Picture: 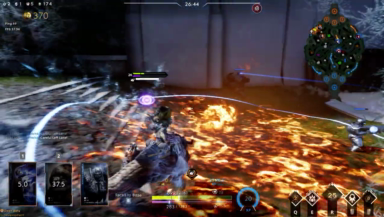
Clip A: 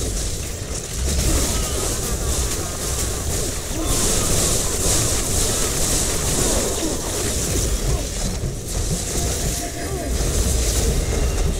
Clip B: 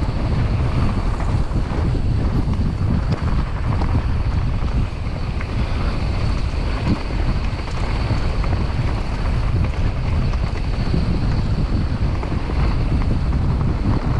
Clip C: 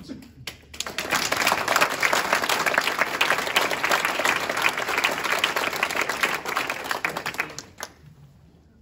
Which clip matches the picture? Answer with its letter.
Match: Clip A